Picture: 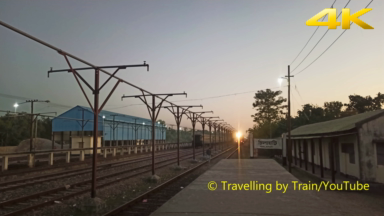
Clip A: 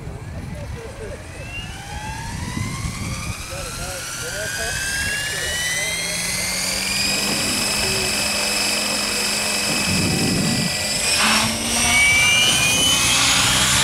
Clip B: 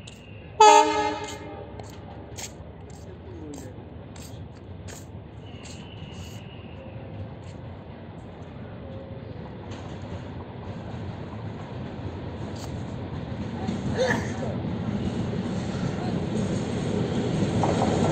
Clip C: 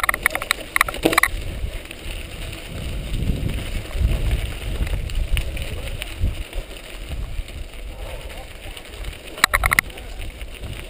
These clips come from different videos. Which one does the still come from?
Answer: B